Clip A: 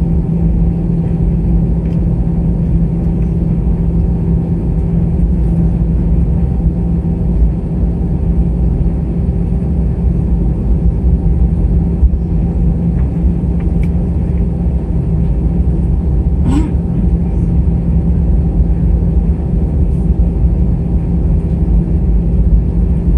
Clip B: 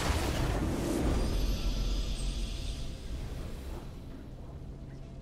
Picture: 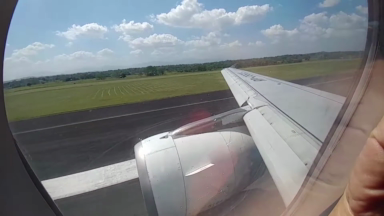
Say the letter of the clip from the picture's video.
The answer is A